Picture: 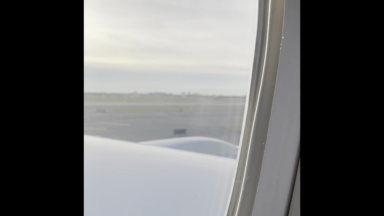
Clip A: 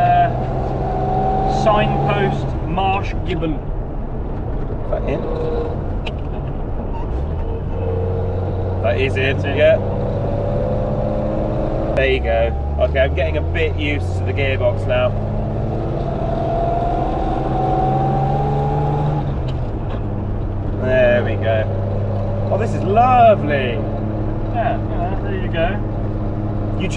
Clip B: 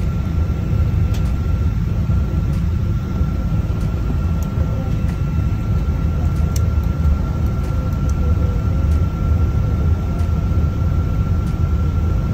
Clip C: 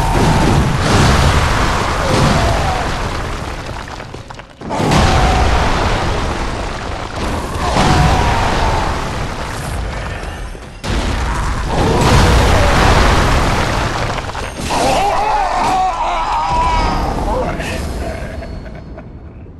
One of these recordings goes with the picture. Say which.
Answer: B